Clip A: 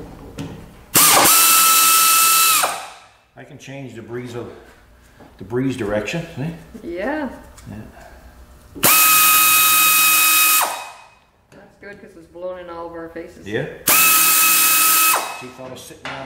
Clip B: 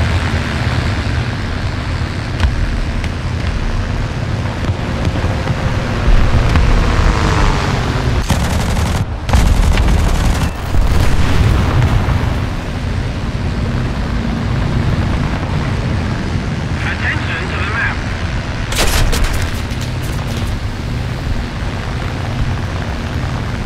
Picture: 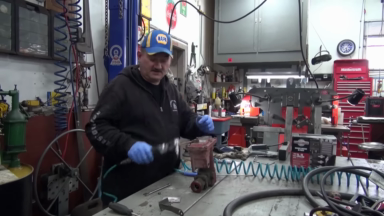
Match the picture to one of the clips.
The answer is A